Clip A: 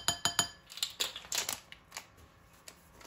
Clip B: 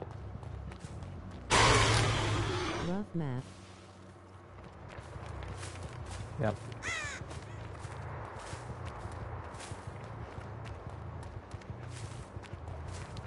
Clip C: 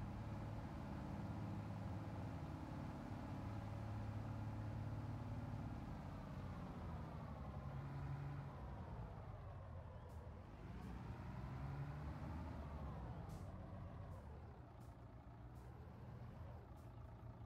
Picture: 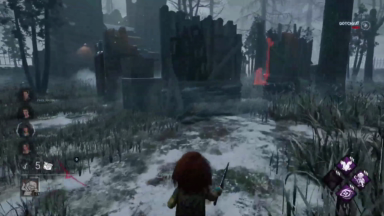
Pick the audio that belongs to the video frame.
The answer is B